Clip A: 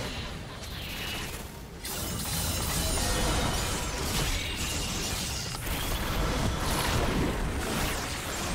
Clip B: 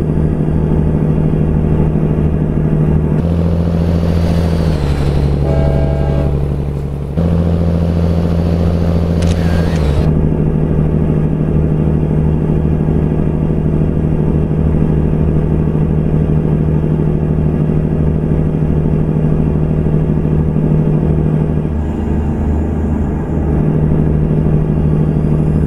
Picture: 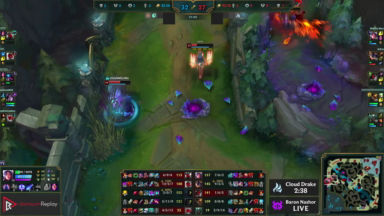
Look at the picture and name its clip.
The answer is A